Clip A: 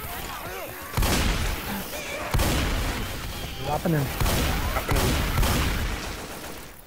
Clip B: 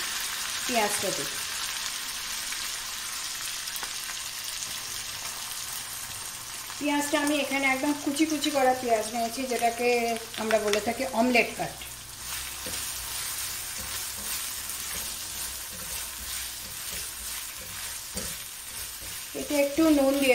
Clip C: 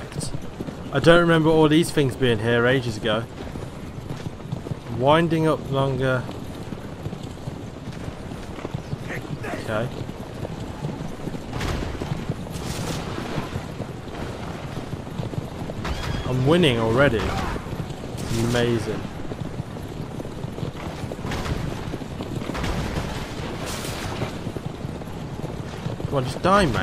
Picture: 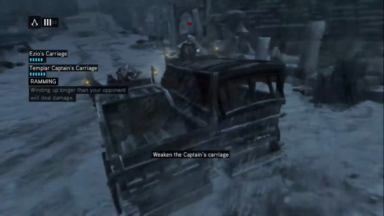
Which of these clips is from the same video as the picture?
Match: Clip C